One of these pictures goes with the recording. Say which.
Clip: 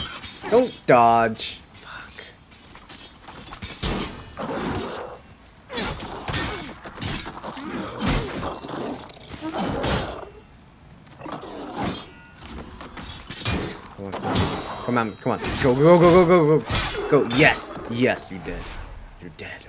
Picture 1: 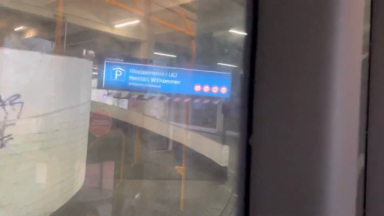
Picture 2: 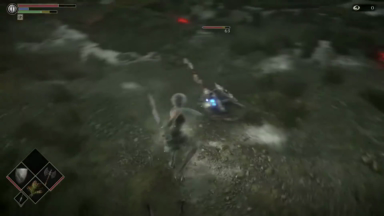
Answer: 2